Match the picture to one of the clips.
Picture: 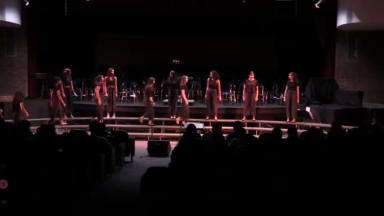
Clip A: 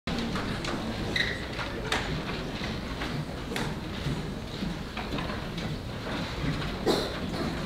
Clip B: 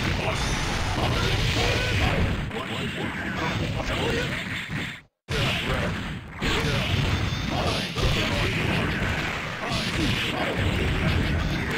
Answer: A